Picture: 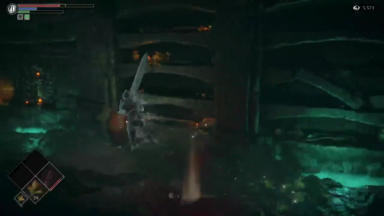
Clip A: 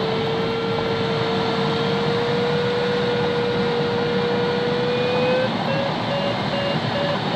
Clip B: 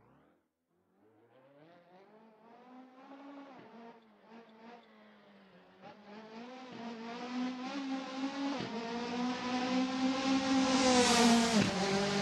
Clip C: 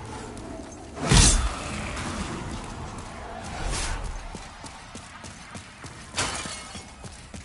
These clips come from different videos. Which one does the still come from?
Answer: C